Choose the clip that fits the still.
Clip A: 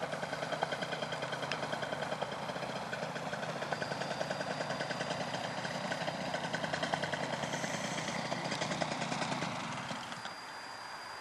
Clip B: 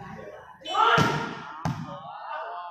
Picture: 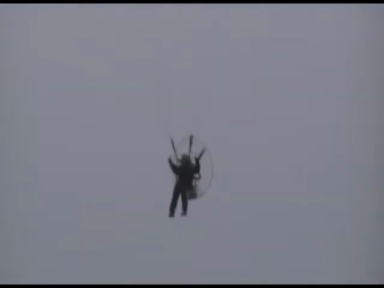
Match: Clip A